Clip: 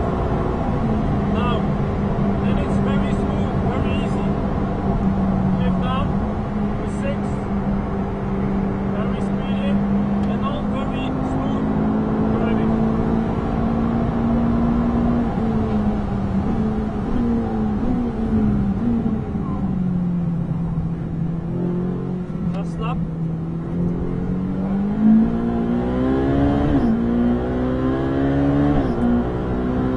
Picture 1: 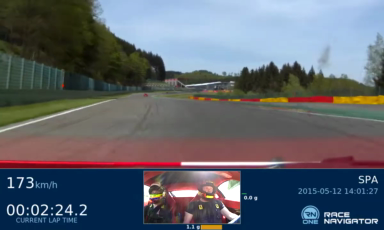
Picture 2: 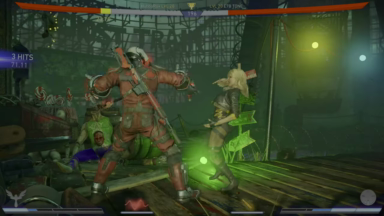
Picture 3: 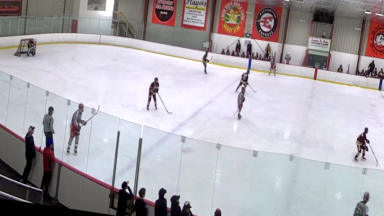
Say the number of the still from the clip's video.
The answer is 1